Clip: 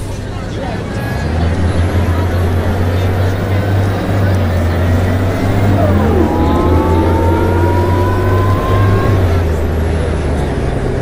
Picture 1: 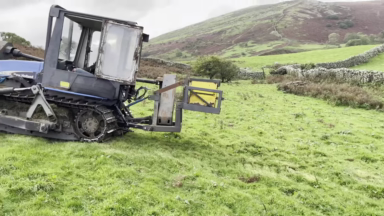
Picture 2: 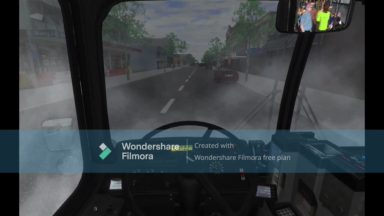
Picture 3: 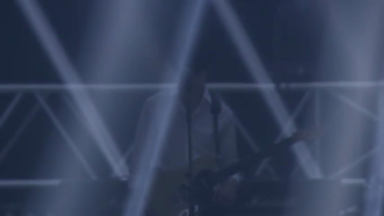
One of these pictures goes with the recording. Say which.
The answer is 2